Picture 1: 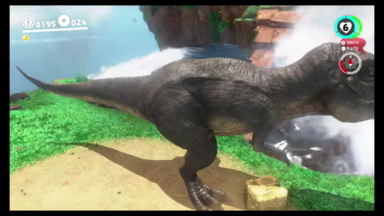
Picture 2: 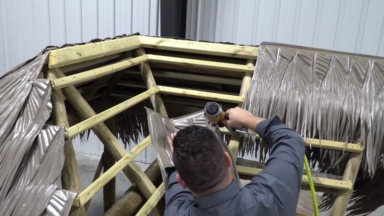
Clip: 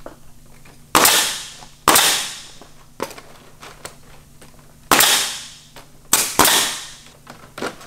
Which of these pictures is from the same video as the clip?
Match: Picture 2